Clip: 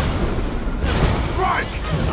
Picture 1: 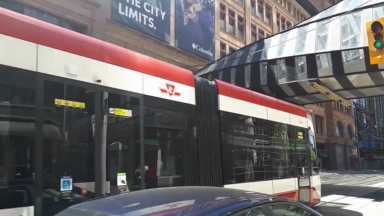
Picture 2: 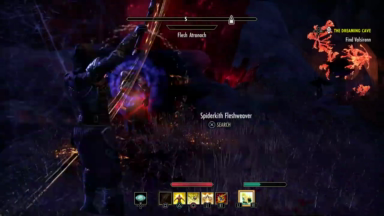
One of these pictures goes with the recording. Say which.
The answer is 2